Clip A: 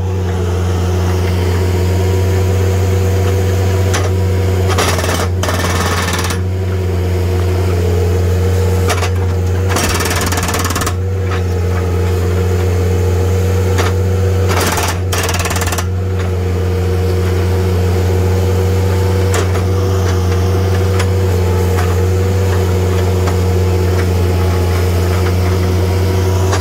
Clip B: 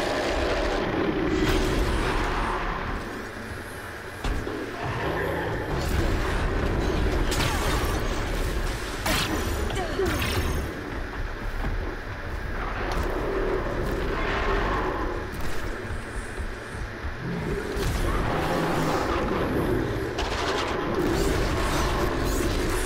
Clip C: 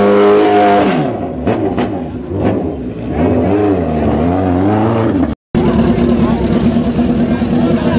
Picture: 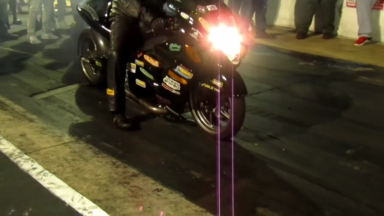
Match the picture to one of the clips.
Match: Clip C